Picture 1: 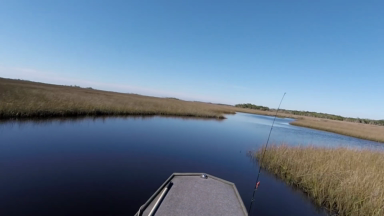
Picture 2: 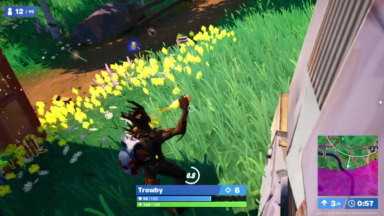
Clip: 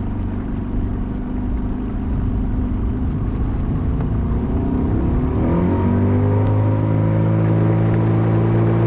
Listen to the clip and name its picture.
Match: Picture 1